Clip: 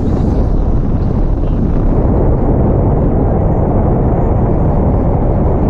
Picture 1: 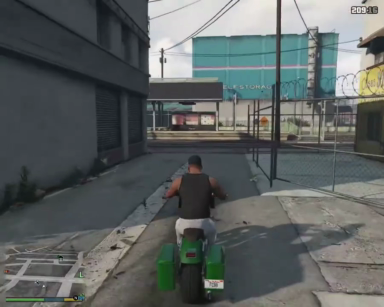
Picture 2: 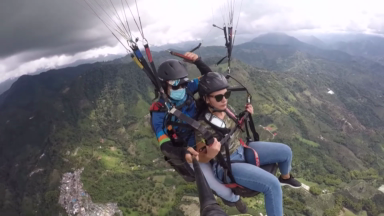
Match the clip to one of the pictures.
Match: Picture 2